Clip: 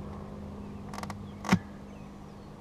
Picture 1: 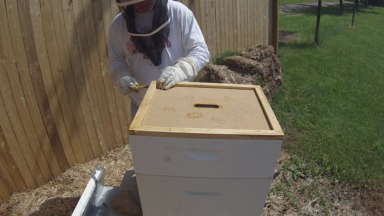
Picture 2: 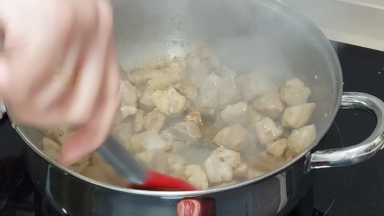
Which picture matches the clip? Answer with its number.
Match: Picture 1